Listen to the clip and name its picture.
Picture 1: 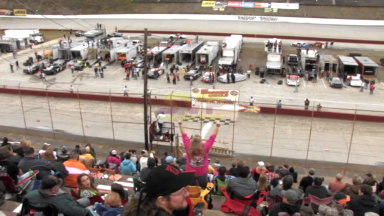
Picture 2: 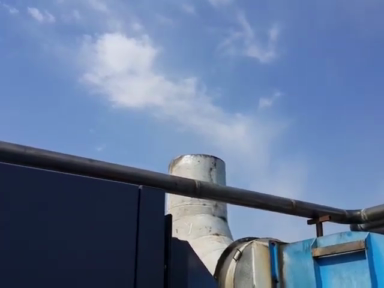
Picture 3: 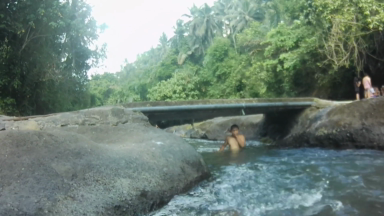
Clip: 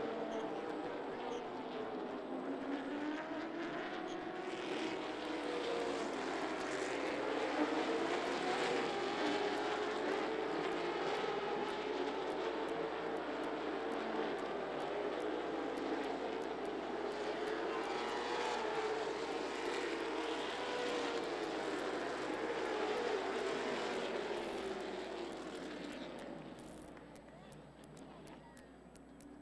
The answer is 1